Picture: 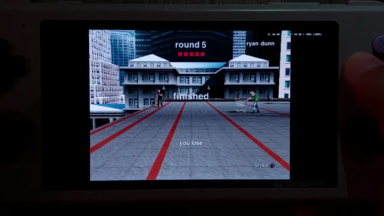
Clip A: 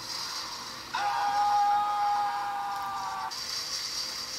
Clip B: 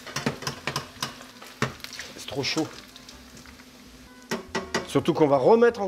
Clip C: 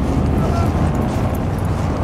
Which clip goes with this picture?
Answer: A